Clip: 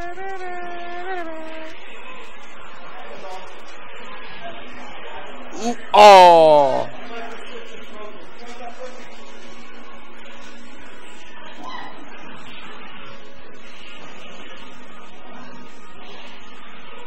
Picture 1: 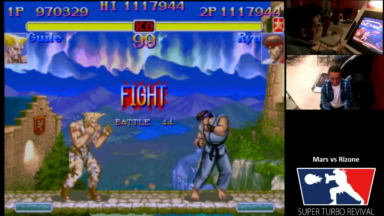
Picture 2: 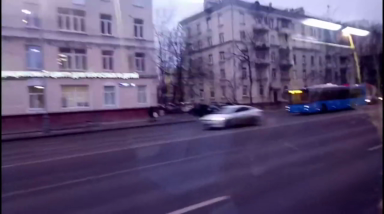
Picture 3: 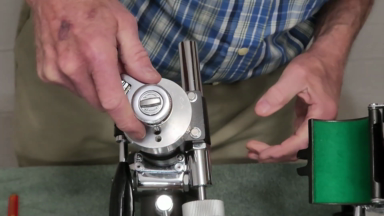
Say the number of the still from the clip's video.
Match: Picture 1